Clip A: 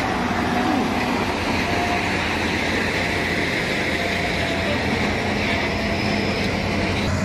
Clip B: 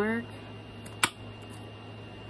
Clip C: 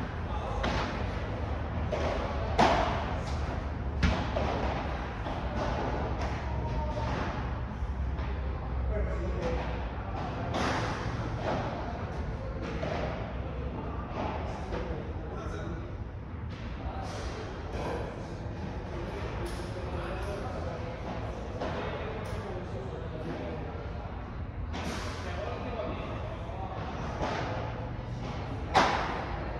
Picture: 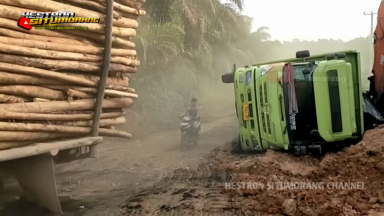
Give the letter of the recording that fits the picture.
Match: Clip A